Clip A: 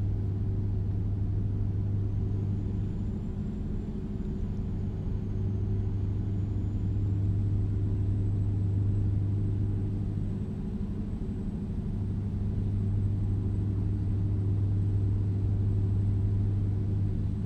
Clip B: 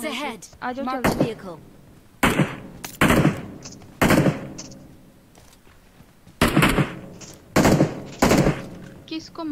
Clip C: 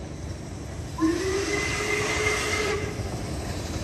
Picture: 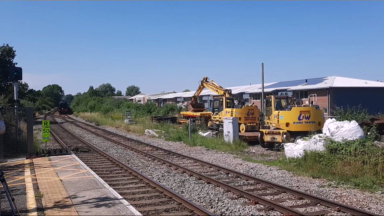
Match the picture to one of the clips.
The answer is C